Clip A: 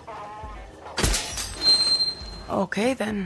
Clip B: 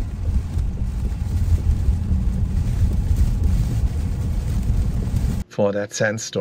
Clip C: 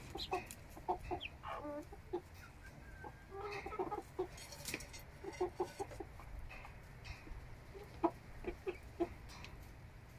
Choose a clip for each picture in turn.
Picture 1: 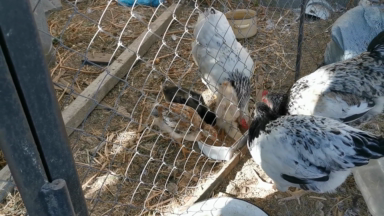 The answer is C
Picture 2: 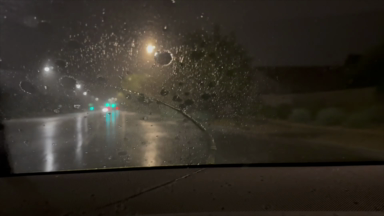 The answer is B